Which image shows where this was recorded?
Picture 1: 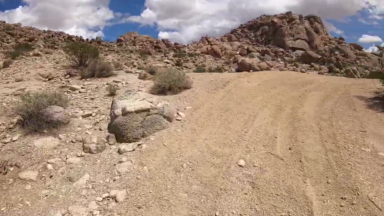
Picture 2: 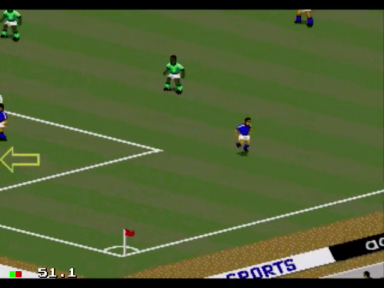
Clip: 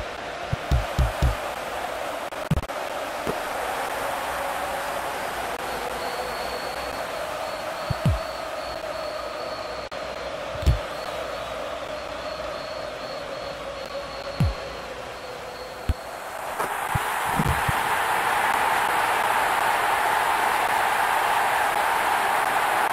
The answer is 2